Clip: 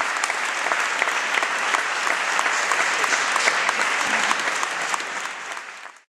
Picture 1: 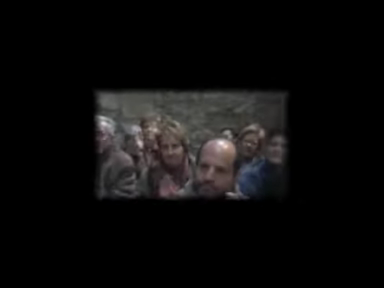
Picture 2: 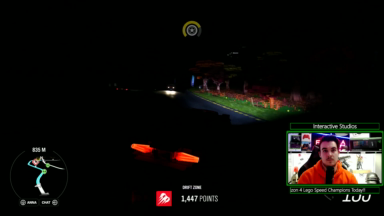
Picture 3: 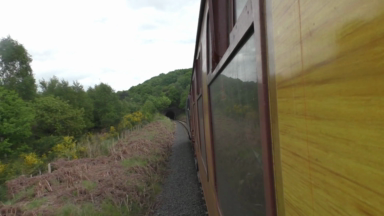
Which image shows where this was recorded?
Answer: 1